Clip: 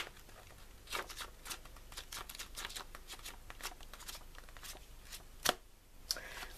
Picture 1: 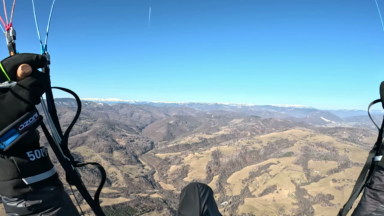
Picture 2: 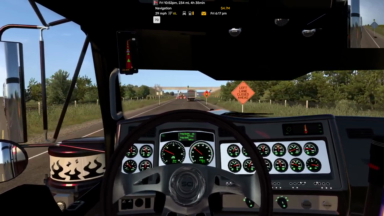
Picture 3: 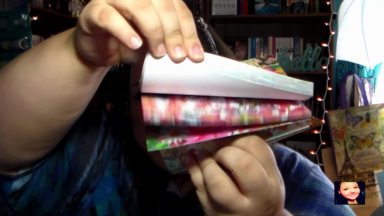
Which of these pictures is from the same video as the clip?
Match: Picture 3